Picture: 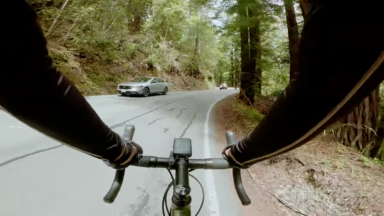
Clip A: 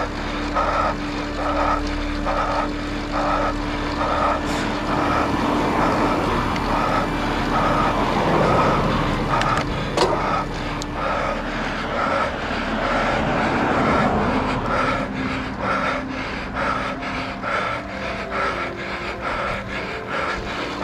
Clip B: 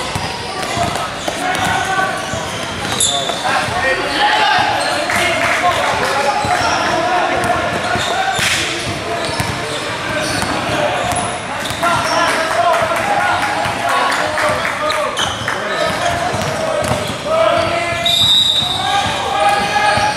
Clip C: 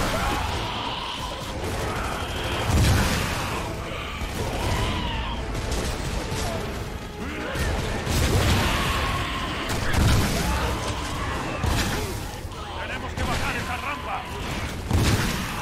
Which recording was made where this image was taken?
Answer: A